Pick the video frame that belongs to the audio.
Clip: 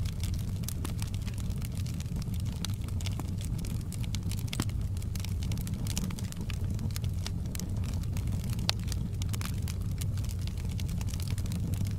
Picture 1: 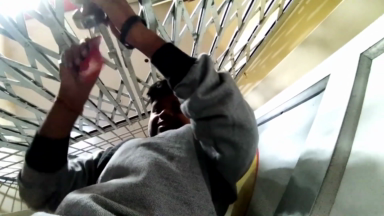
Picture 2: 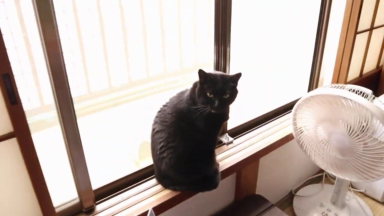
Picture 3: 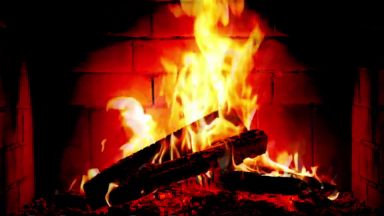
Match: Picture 3